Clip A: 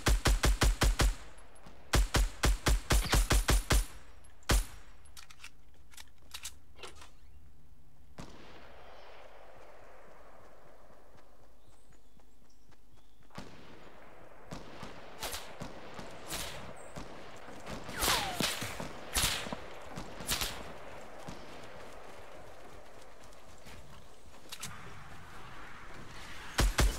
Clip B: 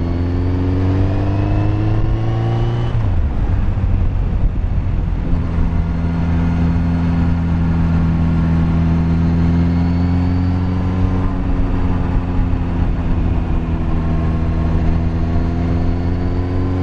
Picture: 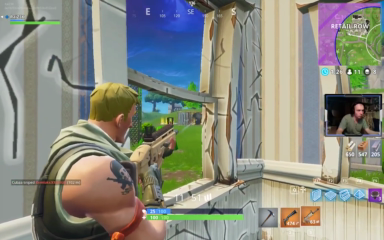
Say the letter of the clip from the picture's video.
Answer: A